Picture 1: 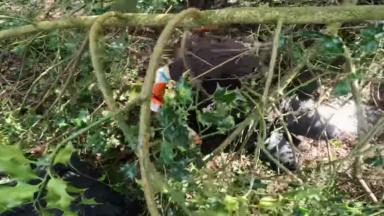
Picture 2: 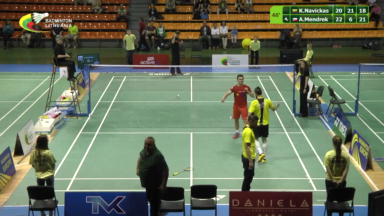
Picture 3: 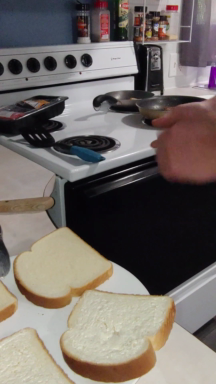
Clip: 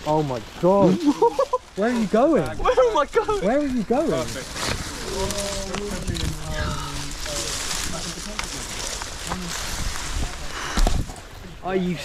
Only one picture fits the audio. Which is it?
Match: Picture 1